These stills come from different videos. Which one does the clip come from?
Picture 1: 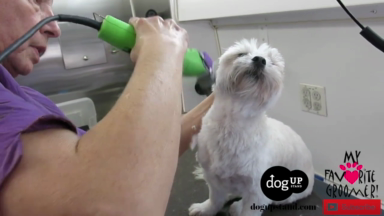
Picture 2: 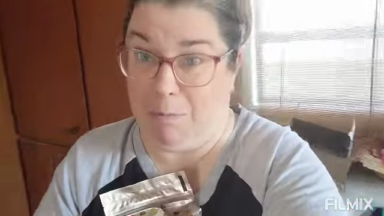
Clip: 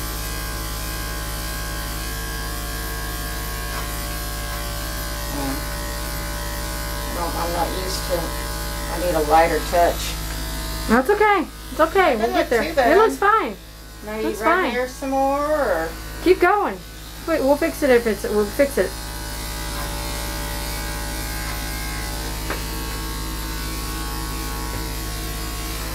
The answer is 1